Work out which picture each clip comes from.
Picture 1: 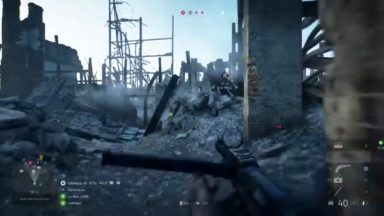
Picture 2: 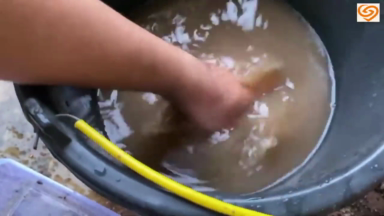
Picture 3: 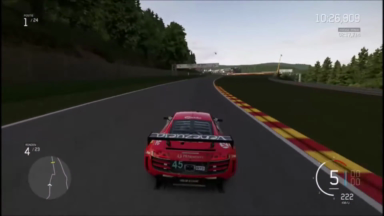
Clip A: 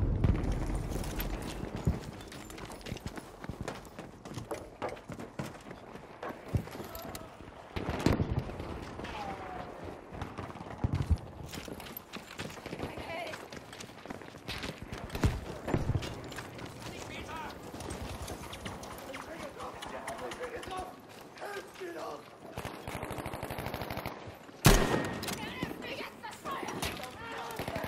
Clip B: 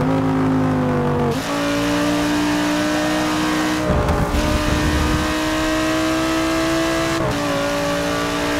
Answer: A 1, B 3